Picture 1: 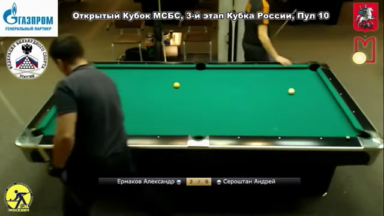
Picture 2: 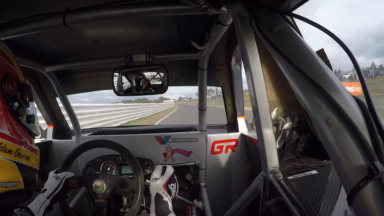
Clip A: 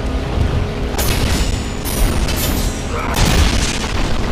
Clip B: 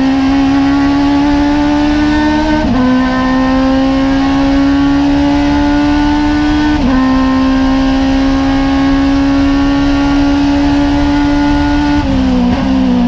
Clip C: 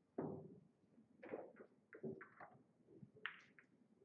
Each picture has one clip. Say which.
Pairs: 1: C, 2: B